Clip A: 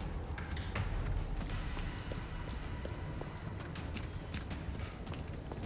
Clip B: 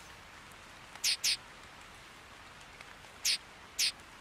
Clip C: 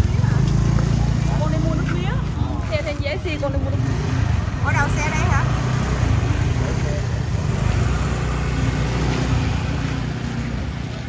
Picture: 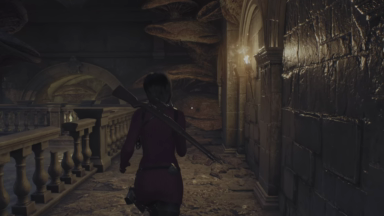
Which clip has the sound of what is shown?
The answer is A